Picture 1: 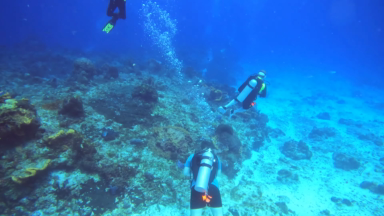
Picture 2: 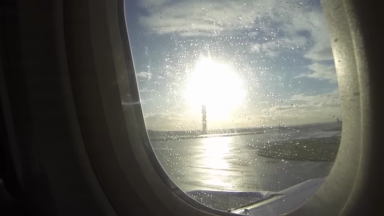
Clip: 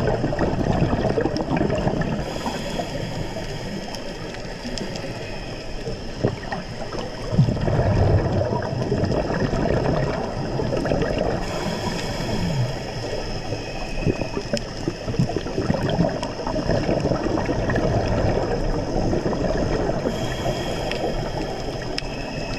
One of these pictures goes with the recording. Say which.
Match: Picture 1